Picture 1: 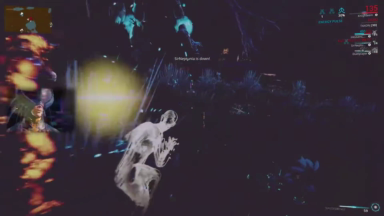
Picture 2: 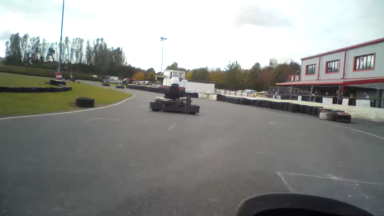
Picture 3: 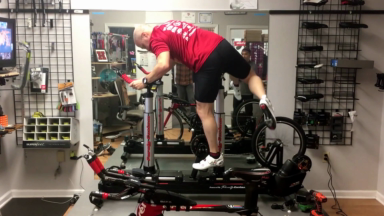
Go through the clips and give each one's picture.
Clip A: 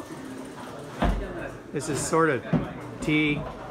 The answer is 3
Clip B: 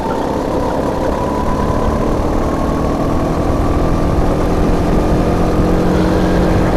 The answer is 2